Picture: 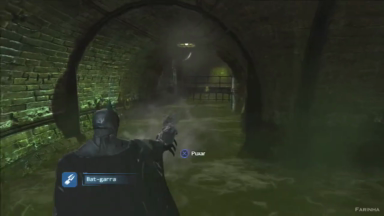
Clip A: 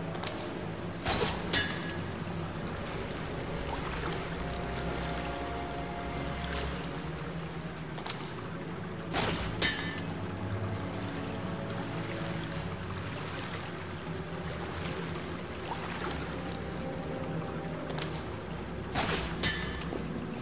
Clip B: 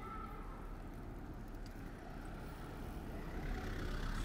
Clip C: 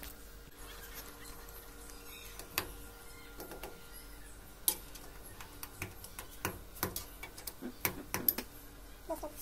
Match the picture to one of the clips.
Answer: A